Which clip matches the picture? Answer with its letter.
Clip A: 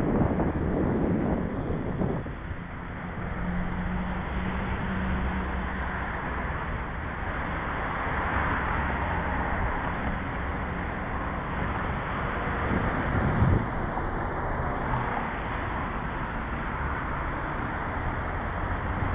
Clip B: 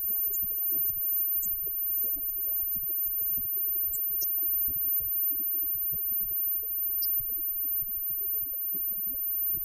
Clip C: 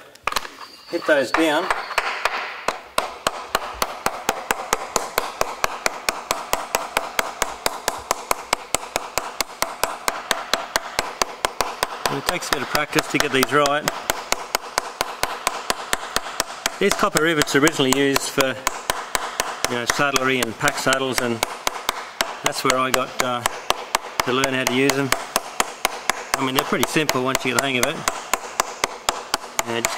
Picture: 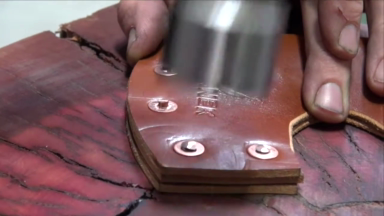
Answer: C